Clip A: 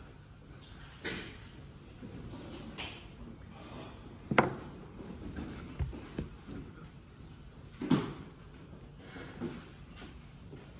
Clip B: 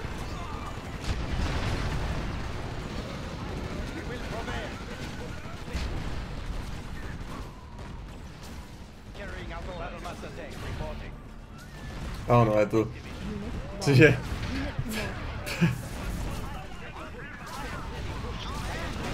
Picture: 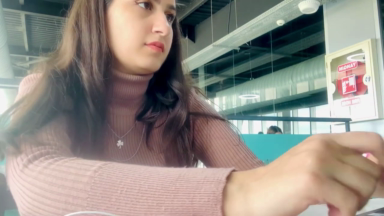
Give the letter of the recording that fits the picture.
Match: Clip A